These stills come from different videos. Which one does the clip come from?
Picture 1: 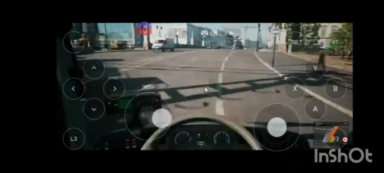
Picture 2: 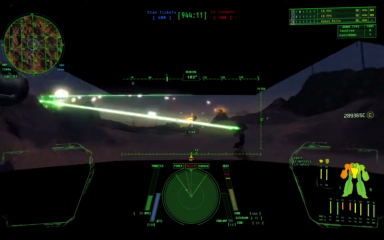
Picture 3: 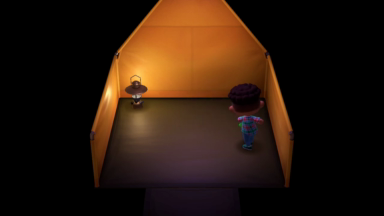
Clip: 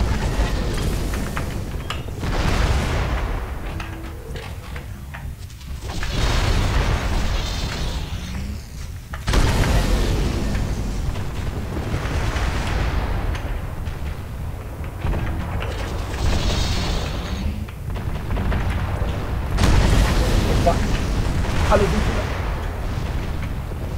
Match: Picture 2